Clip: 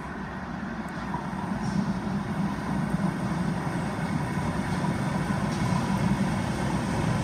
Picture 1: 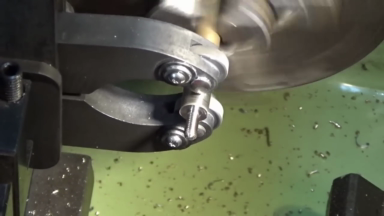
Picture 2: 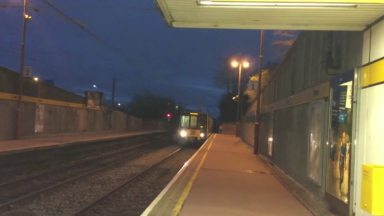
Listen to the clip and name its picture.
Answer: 2